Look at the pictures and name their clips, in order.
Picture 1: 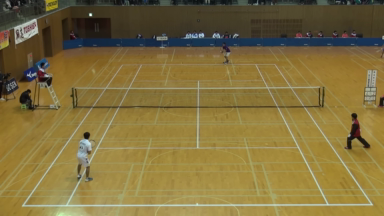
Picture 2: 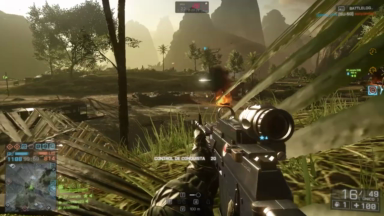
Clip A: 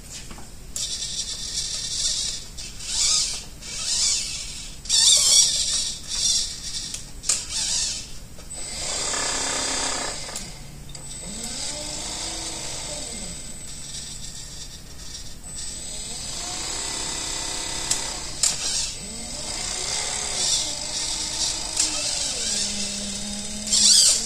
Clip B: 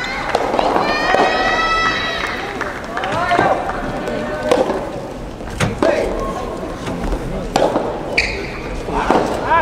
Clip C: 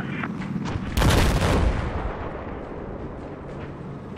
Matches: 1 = B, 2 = C